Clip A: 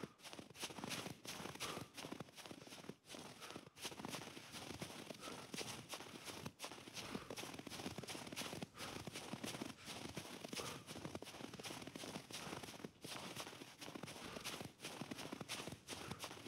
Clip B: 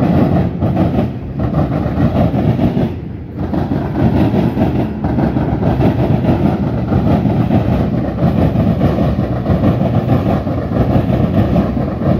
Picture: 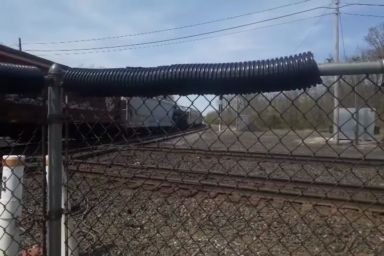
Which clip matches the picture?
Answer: B